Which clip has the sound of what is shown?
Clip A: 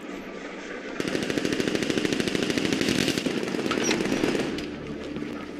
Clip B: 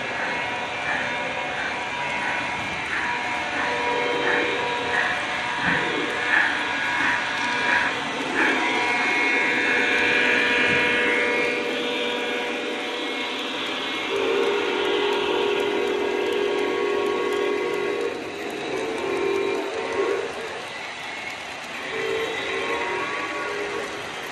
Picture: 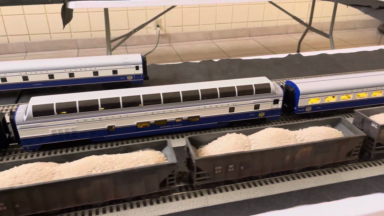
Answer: B